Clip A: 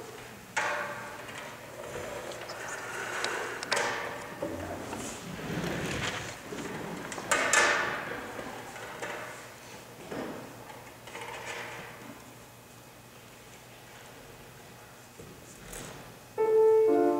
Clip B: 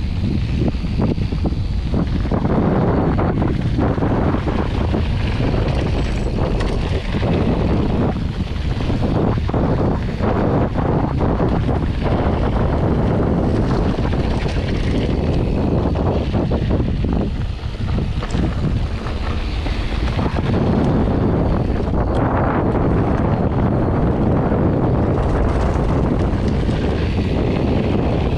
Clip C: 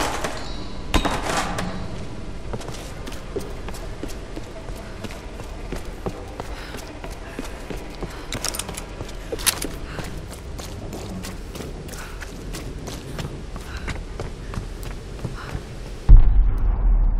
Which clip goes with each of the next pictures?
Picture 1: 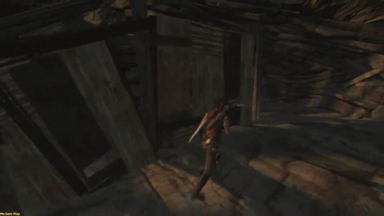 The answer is C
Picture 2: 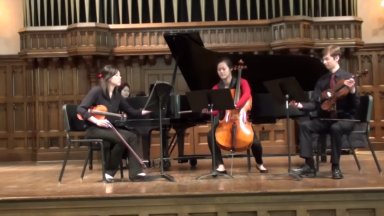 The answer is A